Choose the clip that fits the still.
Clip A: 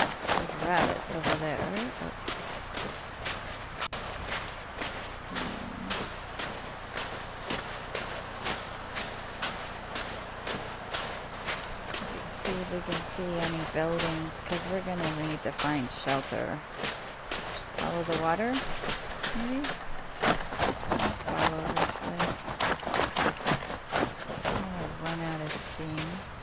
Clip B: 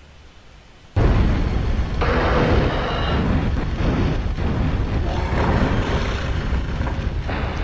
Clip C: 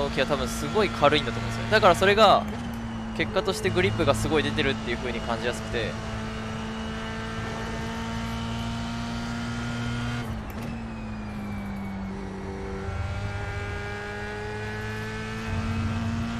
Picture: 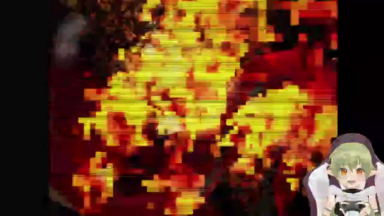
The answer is B